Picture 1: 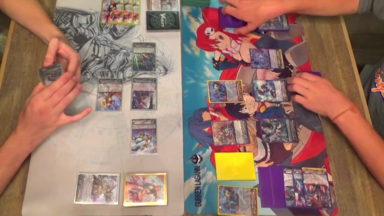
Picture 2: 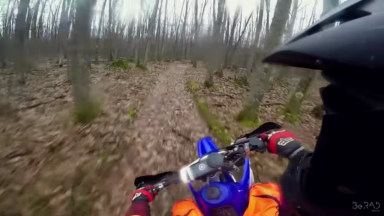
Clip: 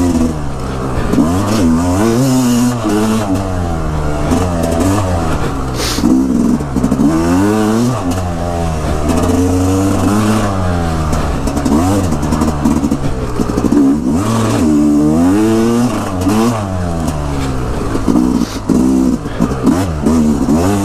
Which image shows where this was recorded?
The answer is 2